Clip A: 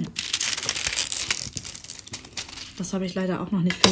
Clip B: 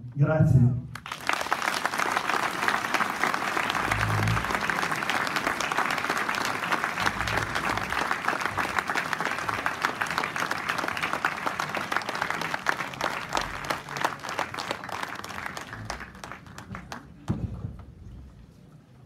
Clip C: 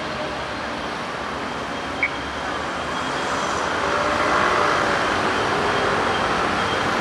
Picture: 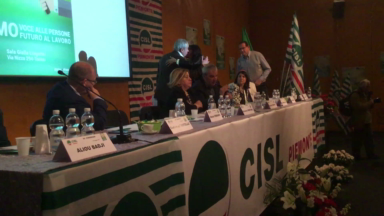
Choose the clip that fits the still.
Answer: B